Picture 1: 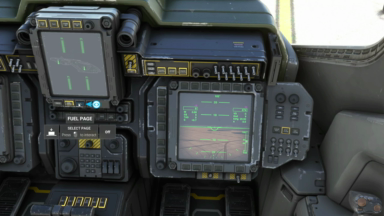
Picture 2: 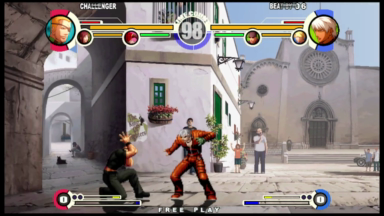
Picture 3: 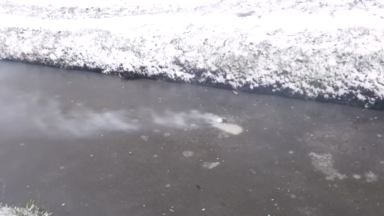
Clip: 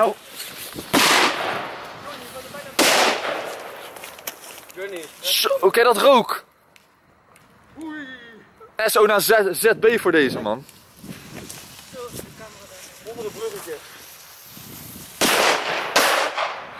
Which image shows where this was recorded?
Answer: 3